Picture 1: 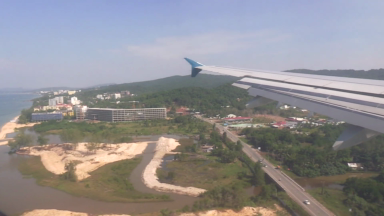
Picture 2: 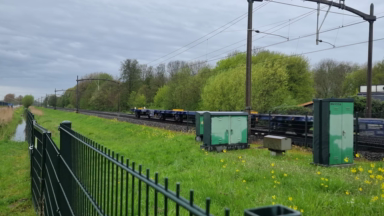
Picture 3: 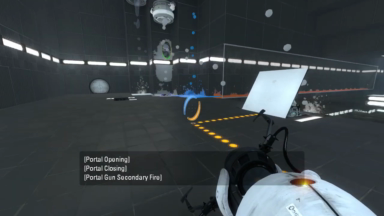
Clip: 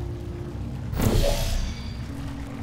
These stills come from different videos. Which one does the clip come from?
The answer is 3